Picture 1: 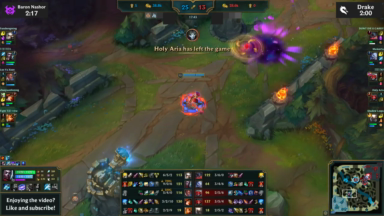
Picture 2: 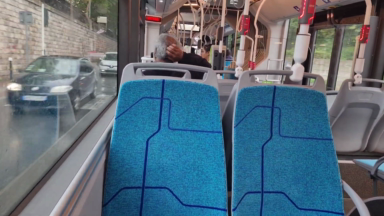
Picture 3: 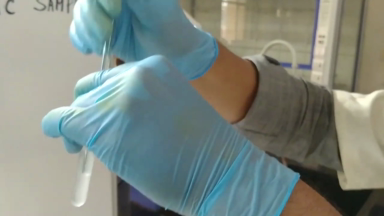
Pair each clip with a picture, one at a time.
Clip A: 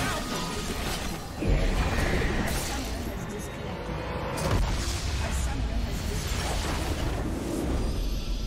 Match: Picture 1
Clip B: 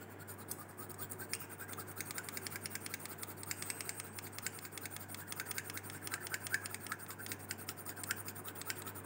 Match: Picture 3